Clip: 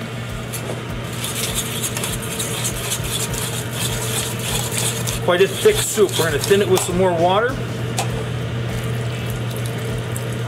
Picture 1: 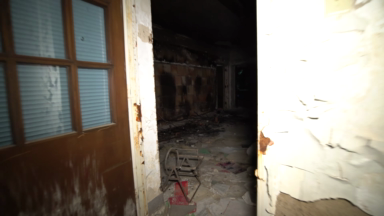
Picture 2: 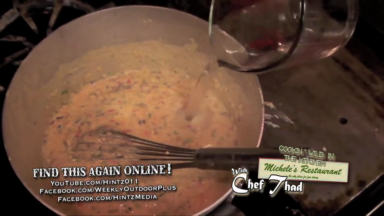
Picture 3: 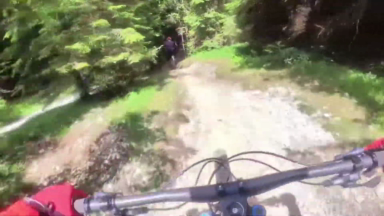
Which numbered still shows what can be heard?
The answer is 2